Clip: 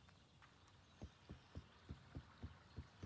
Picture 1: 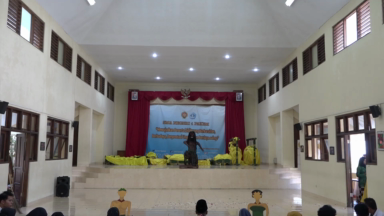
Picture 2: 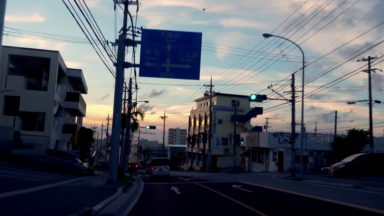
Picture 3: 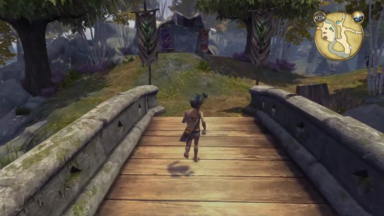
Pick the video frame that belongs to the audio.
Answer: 3